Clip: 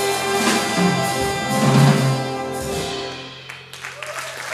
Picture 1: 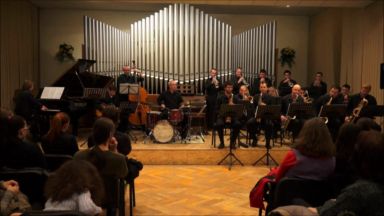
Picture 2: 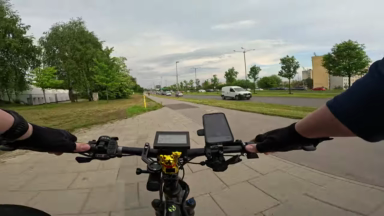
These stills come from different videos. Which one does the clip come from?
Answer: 1